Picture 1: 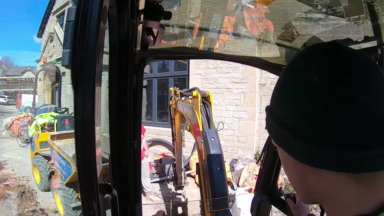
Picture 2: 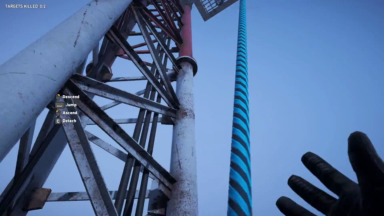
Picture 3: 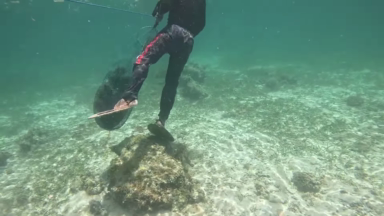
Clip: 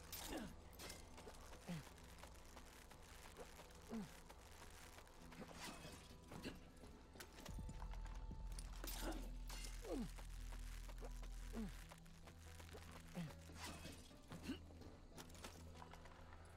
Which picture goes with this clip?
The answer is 2